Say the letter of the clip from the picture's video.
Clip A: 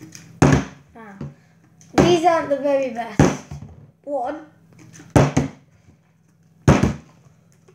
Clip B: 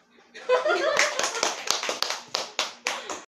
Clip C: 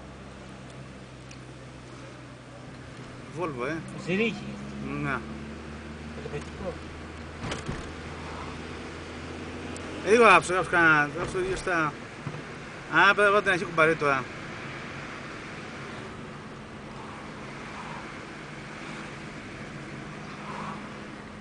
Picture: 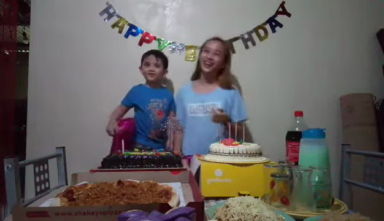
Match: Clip B